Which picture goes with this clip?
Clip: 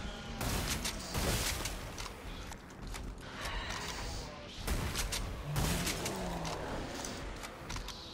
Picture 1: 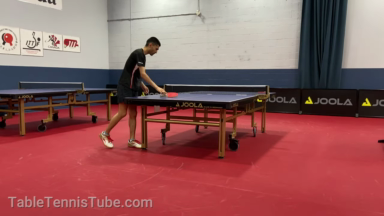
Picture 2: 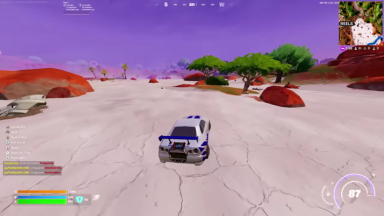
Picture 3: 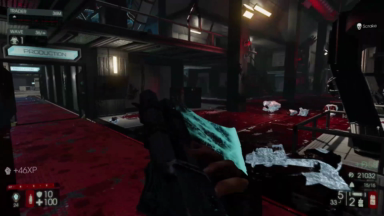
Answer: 3